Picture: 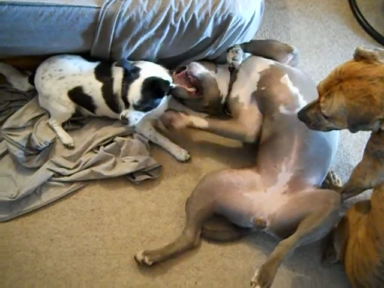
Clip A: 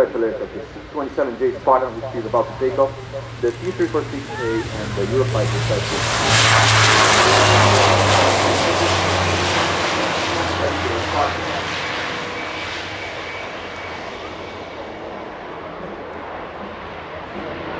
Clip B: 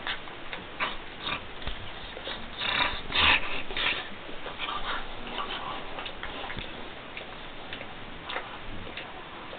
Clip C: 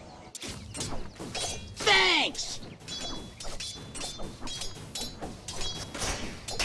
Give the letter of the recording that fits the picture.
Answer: B